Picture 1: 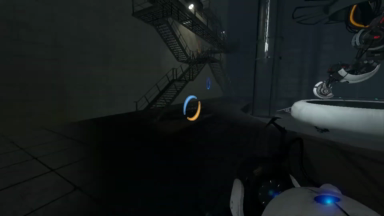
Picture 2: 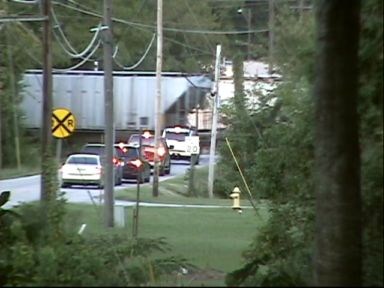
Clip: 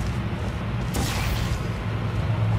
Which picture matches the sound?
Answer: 1